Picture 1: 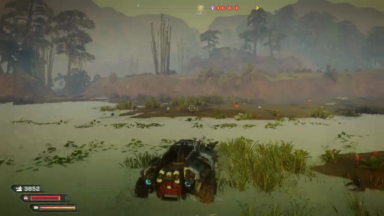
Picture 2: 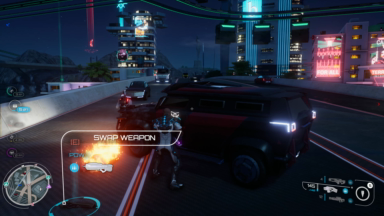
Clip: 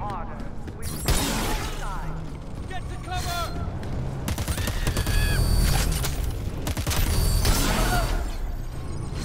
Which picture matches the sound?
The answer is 2